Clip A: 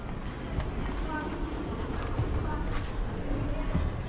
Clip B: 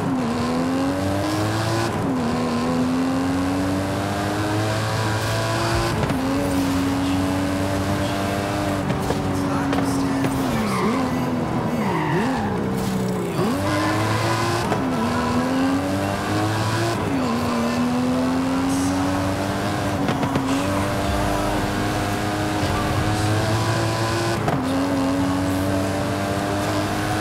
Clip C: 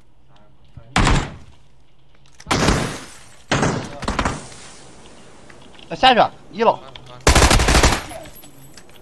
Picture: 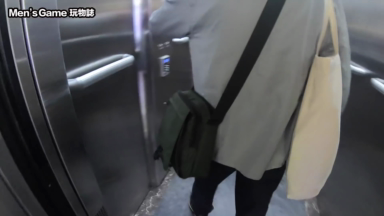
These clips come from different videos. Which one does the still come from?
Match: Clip A